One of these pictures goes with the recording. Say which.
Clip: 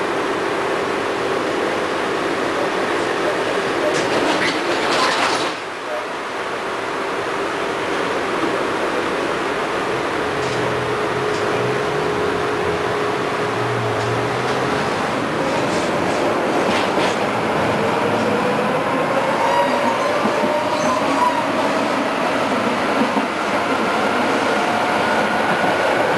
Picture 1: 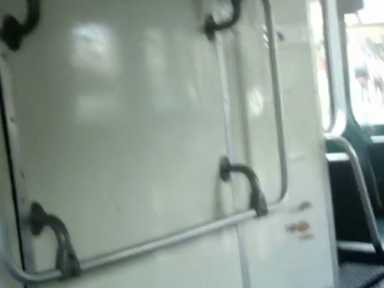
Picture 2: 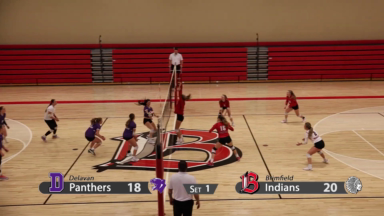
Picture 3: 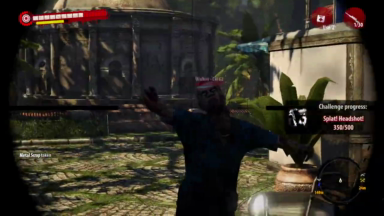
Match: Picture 1